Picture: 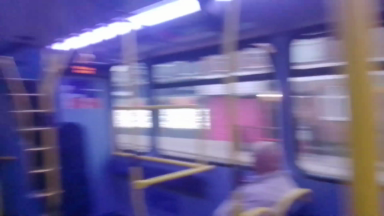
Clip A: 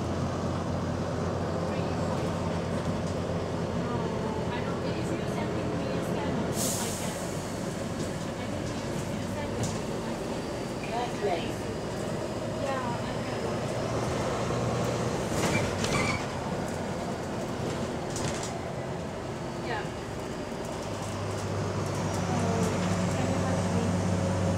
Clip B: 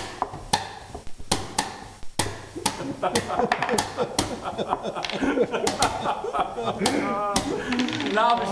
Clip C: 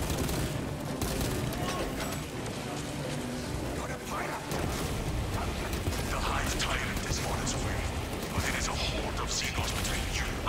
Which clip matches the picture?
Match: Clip A